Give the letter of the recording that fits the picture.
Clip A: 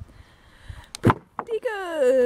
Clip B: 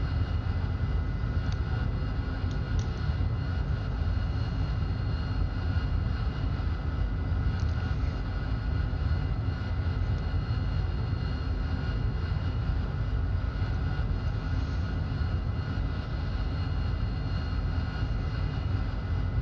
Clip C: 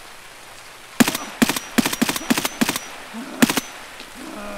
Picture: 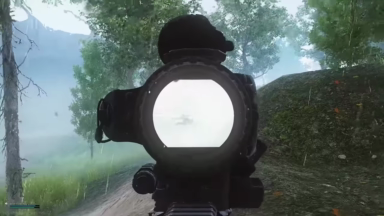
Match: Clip C